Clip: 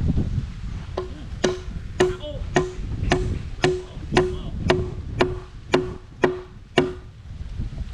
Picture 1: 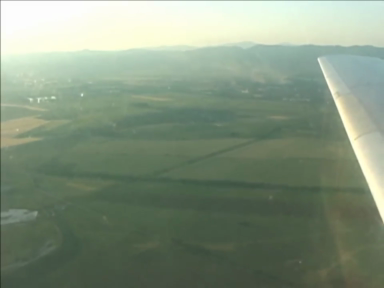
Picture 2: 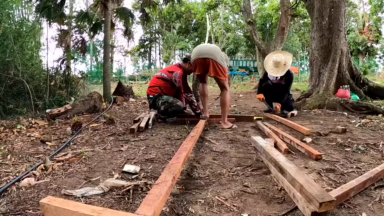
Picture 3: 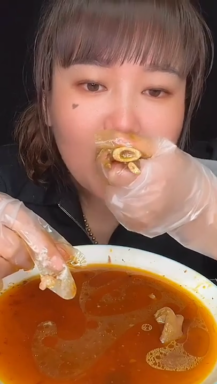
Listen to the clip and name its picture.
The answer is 2